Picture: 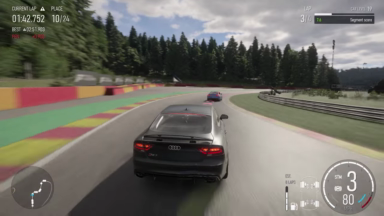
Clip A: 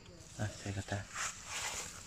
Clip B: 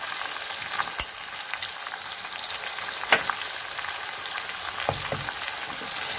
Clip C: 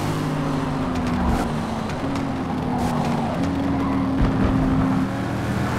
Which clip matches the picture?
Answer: C